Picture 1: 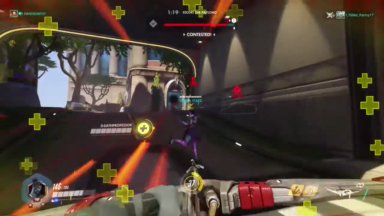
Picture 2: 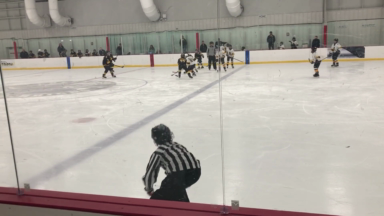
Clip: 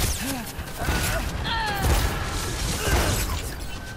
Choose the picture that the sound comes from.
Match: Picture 1